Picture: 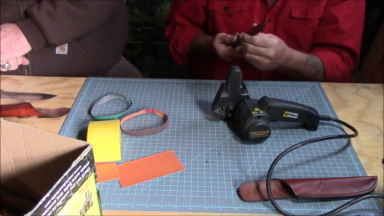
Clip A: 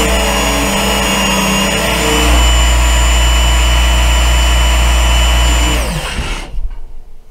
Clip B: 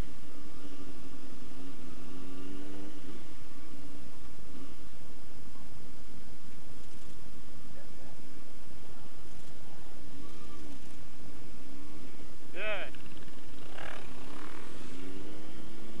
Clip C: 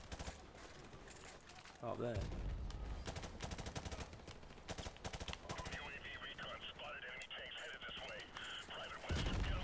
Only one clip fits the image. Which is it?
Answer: A